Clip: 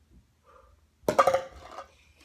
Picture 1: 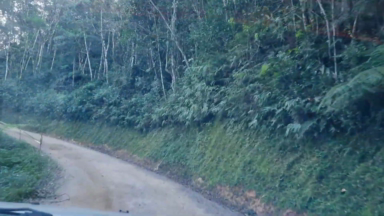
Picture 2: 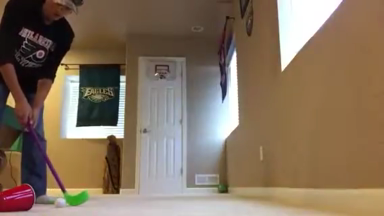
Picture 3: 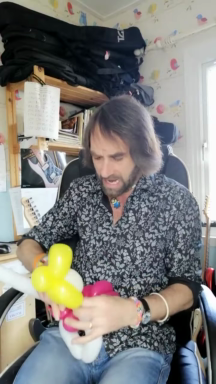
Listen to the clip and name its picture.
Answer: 2